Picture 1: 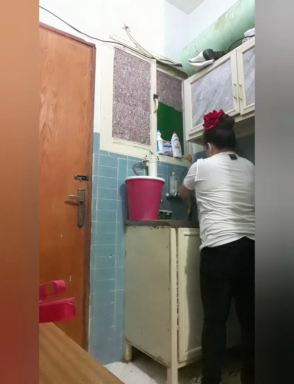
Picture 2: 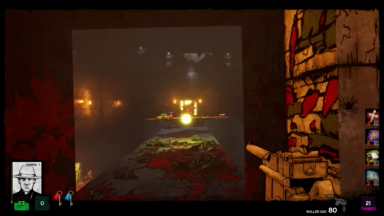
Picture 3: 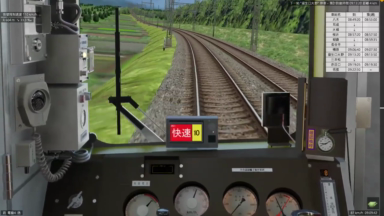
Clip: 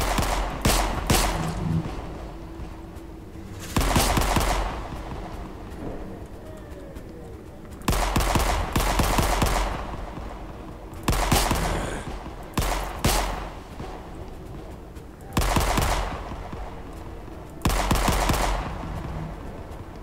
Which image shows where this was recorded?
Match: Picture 2